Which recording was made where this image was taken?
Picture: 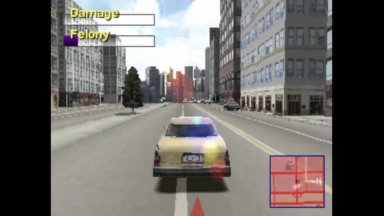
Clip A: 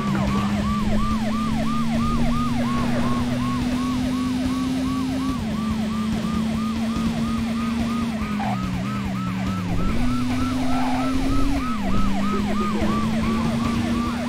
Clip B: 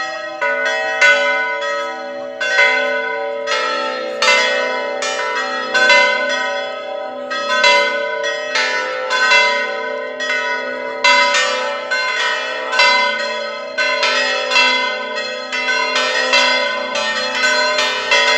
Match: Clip A